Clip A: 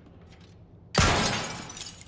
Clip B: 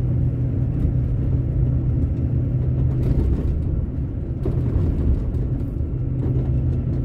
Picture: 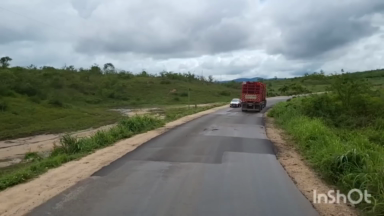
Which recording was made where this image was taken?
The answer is B